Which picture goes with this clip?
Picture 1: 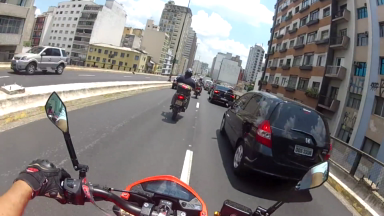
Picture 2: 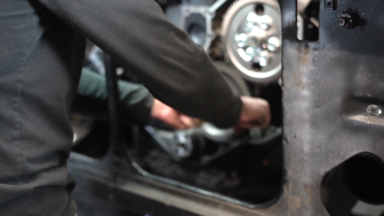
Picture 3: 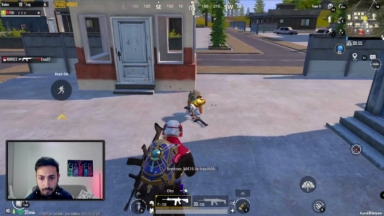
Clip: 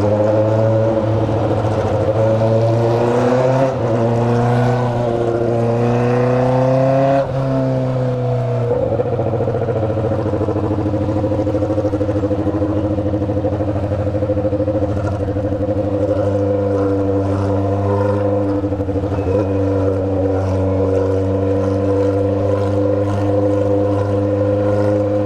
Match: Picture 1